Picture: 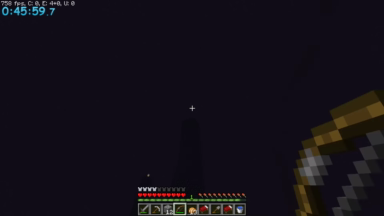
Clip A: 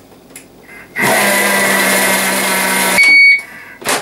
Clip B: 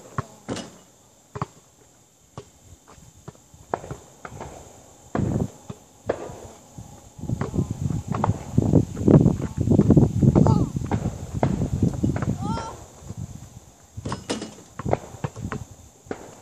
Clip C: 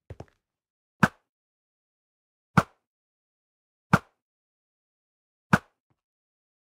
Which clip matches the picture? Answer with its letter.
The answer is C